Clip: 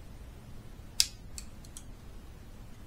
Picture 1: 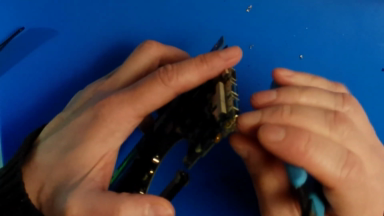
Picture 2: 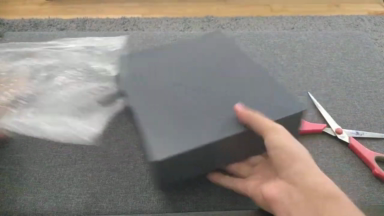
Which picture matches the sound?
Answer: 1